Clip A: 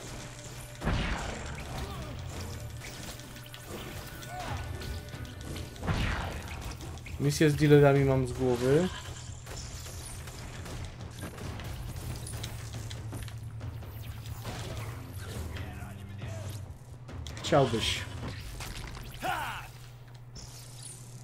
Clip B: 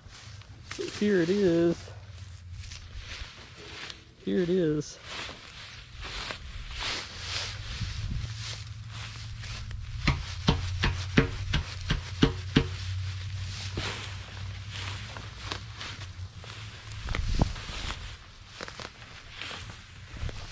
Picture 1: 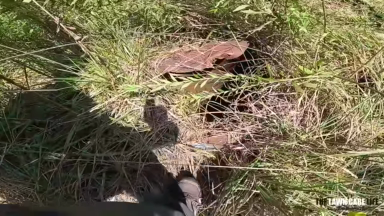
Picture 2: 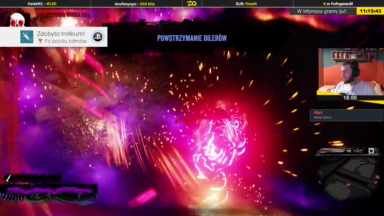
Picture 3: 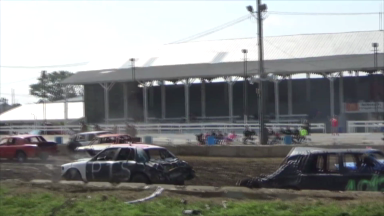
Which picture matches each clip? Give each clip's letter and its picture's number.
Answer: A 2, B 1